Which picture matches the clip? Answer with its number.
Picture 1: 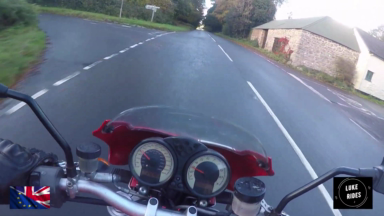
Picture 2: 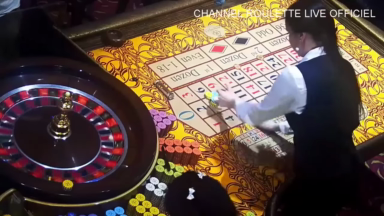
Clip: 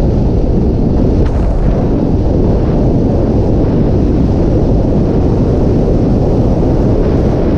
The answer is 1